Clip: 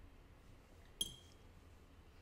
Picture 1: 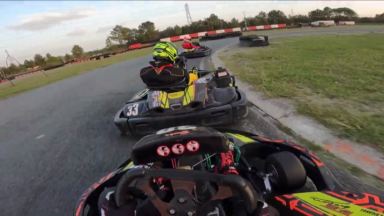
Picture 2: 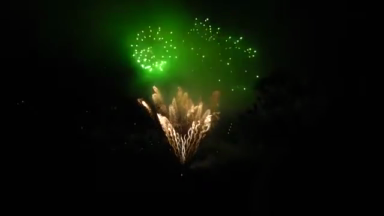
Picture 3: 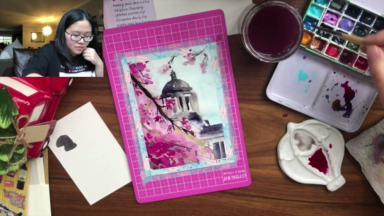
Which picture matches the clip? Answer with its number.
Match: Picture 3